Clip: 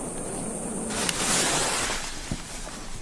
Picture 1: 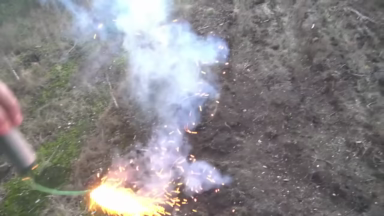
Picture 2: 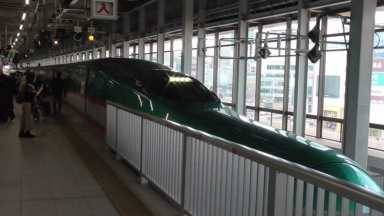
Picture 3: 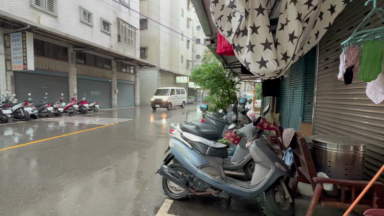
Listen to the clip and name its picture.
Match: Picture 1